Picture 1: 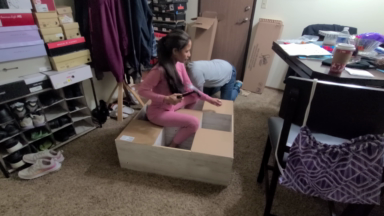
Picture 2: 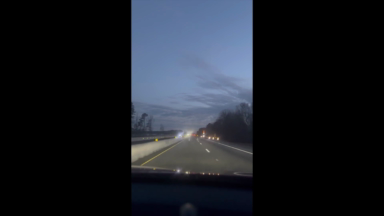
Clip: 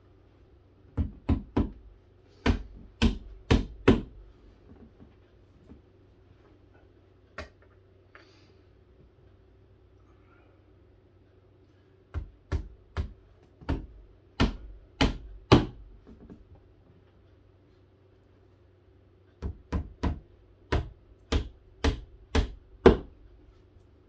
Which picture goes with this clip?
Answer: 1